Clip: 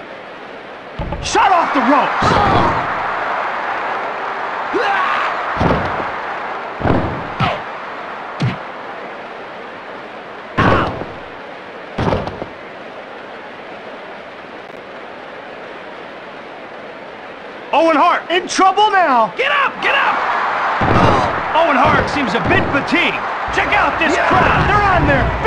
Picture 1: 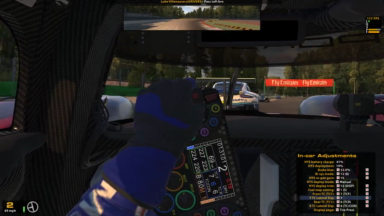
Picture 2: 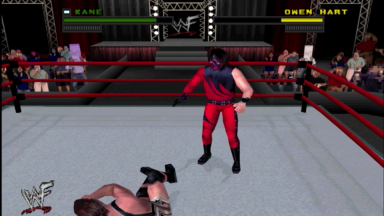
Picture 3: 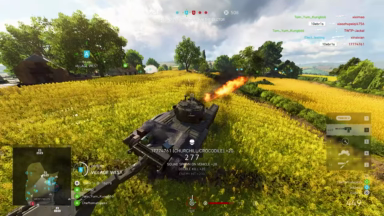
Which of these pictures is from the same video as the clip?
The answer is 2